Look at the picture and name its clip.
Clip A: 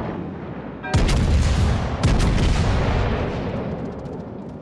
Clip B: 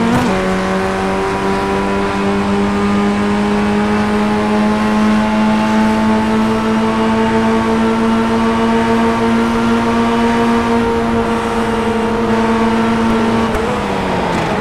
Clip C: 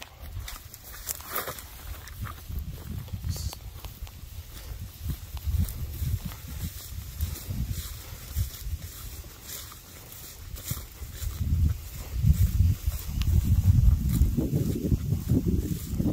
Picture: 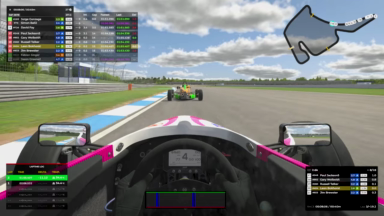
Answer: B